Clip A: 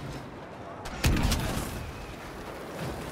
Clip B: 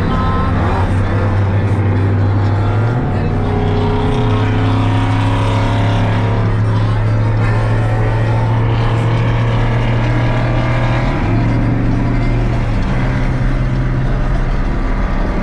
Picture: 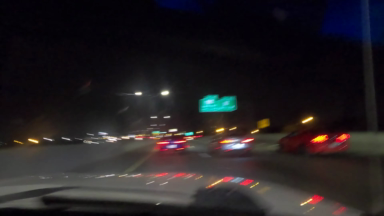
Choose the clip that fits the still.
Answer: B